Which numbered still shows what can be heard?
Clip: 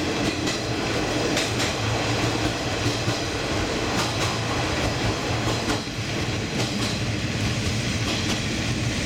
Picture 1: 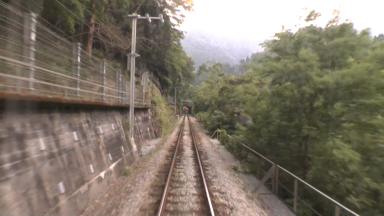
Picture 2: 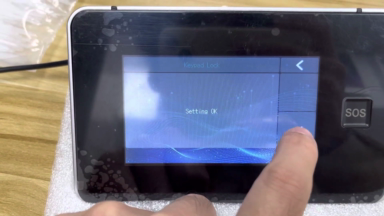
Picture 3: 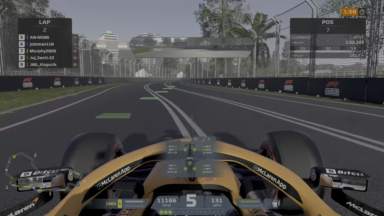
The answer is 1